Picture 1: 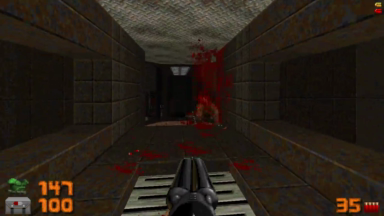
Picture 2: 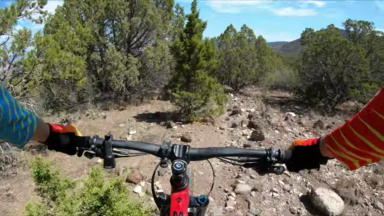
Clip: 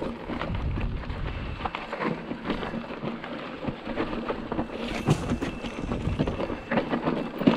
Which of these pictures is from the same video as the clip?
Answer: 2